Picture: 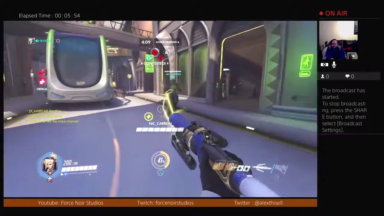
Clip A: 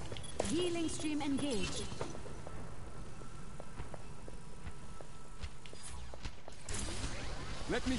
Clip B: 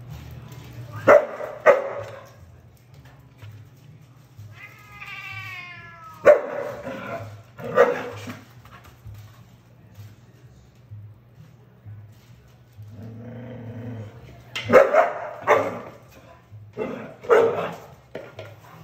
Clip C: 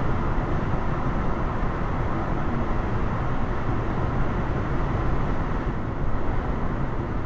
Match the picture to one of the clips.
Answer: A